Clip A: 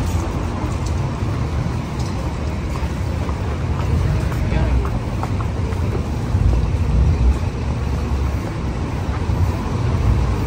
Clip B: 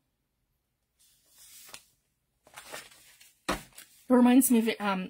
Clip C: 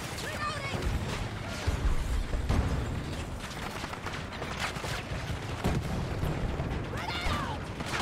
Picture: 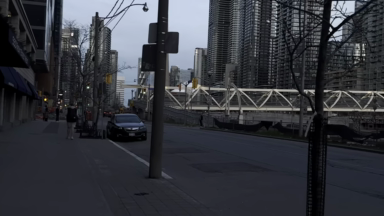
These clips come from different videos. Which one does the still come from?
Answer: A